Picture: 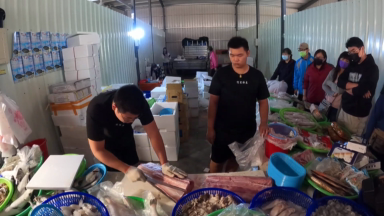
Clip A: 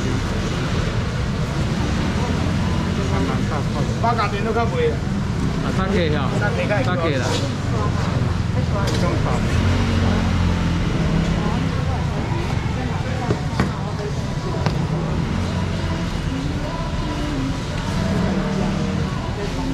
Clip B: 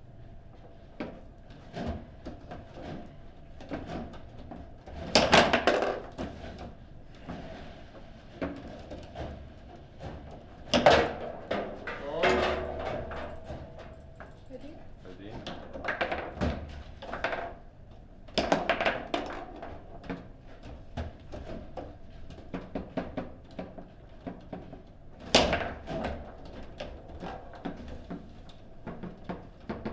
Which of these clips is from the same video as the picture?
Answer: A